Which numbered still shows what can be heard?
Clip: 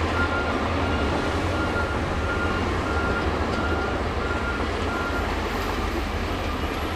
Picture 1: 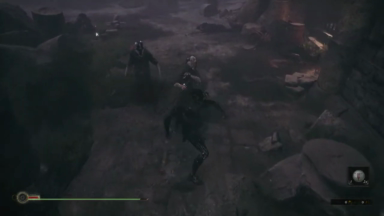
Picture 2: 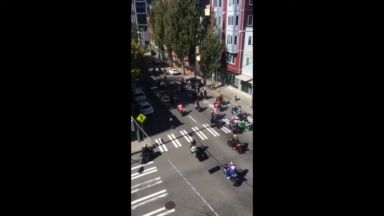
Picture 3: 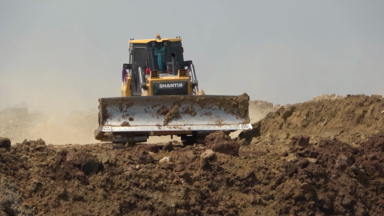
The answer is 3